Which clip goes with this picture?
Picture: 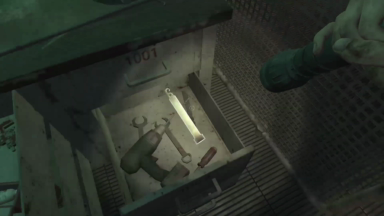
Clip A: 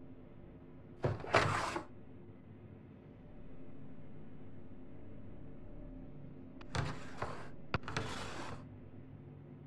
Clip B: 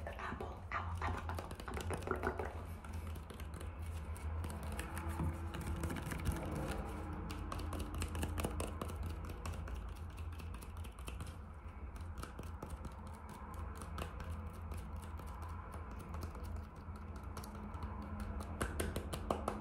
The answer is A